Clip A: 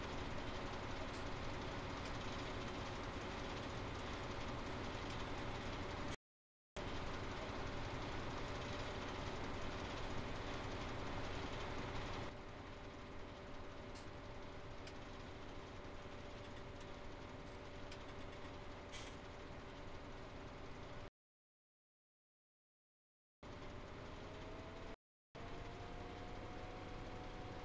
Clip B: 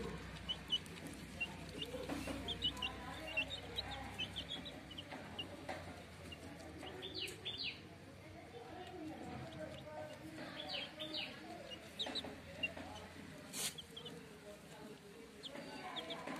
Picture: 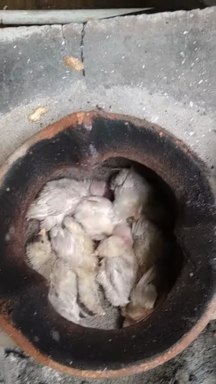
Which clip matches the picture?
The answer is B